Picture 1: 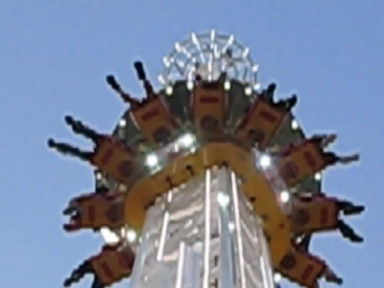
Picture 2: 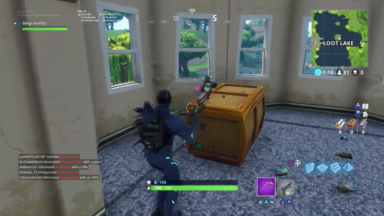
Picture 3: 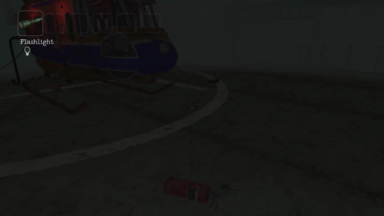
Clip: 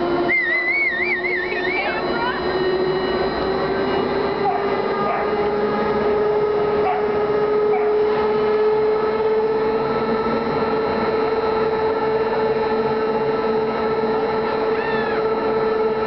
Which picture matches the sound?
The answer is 1